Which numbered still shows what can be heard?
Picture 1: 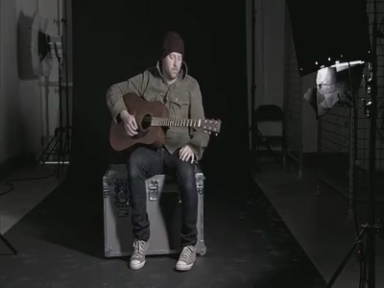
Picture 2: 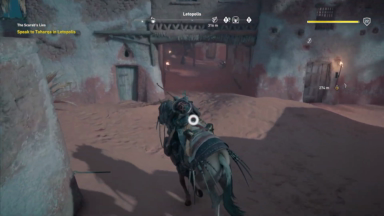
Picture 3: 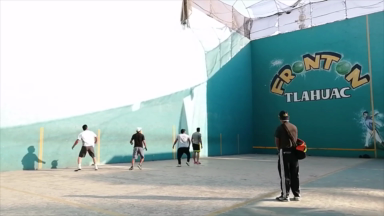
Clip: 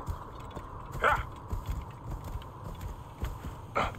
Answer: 2